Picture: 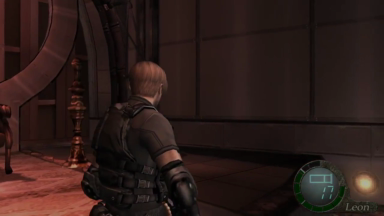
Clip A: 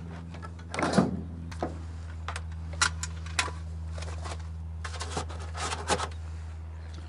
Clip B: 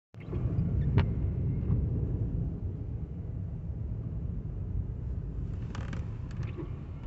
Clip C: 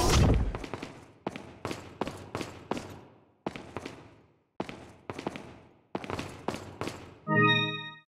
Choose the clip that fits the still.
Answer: C